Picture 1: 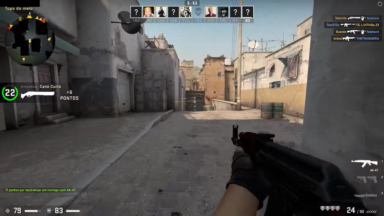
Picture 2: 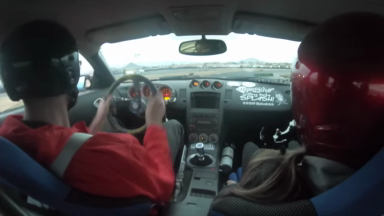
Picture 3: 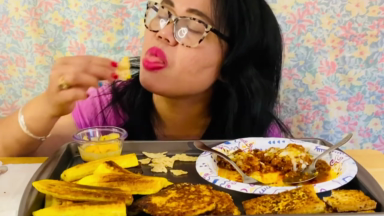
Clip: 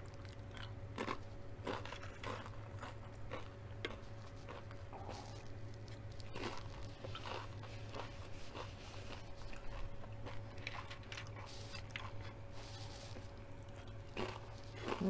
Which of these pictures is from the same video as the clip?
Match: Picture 3